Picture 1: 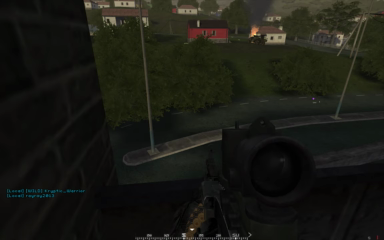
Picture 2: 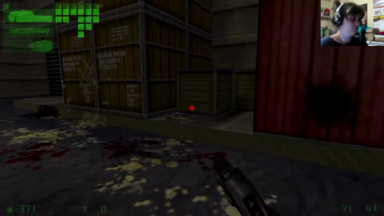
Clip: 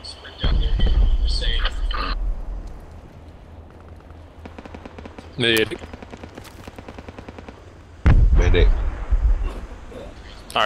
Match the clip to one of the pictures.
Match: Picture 1